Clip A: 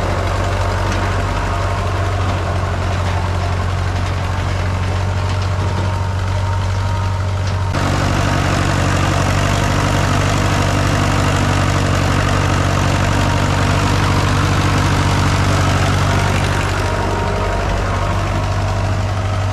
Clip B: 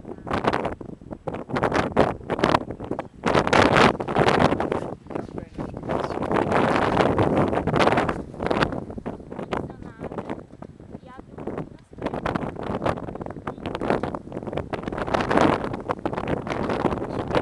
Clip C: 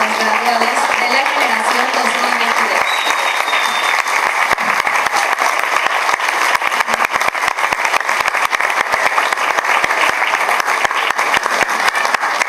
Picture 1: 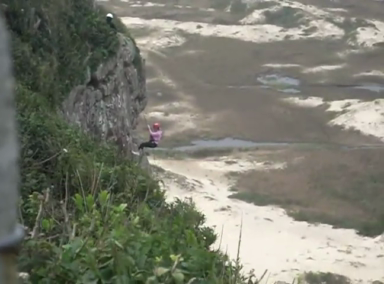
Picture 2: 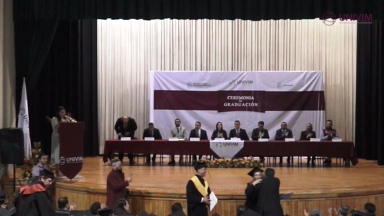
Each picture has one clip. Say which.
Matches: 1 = B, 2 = C